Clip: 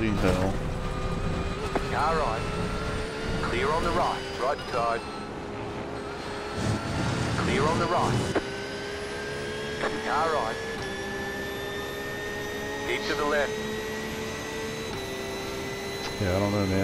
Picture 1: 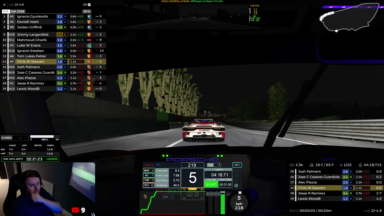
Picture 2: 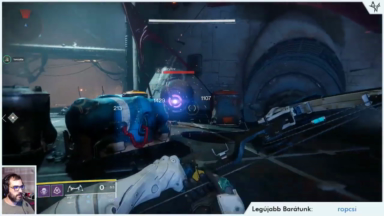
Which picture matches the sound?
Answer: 1